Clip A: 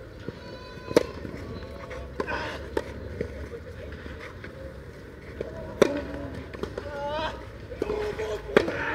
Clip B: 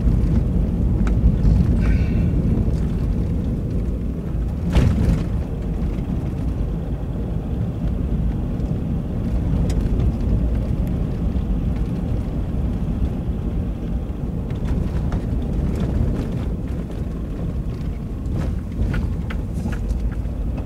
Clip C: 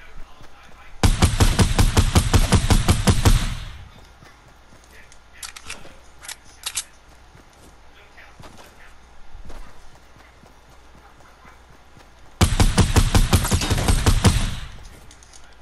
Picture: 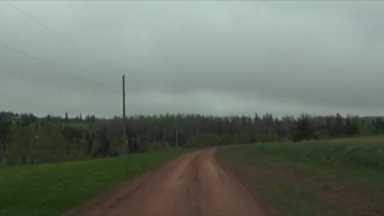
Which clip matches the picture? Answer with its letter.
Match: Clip B